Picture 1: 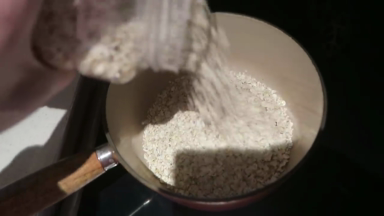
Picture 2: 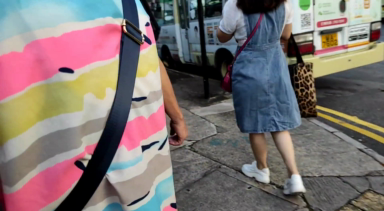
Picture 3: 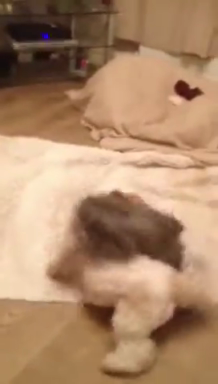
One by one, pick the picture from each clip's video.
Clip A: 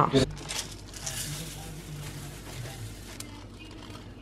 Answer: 1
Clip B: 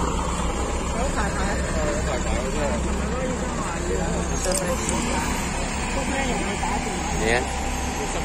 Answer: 2